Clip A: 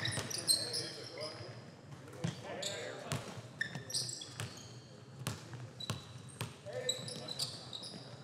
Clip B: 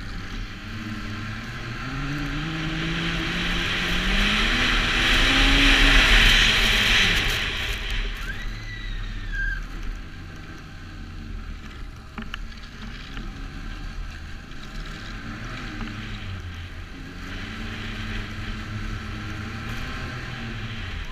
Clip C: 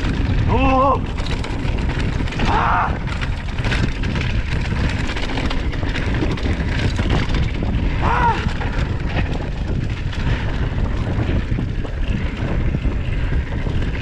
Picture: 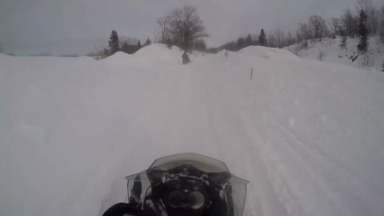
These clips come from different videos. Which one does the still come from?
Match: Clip B